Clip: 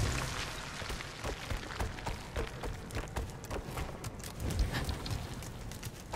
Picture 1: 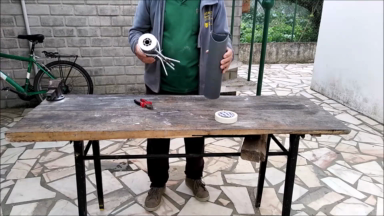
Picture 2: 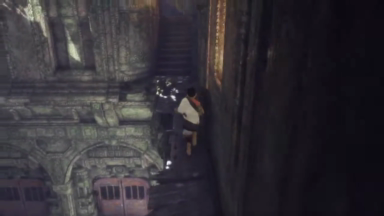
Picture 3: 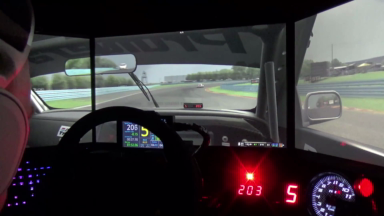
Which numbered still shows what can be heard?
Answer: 2